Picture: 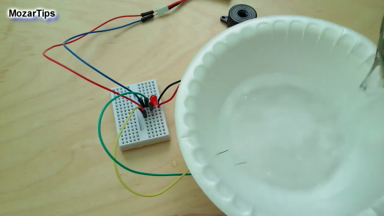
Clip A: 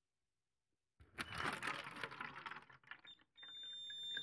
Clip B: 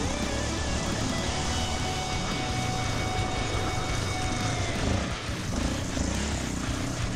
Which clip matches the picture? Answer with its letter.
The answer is A